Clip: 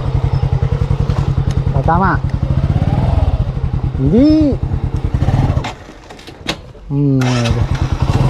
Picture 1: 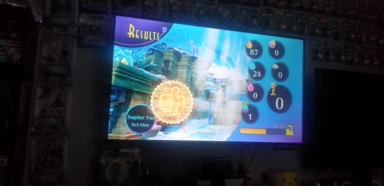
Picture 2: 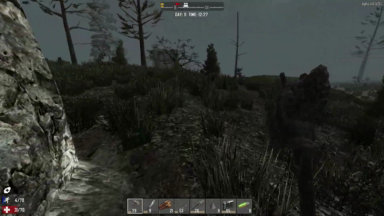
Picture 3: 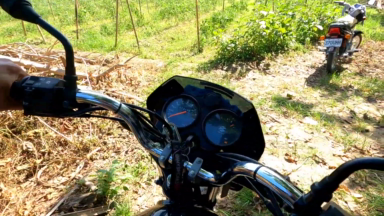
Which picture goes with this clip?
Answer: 3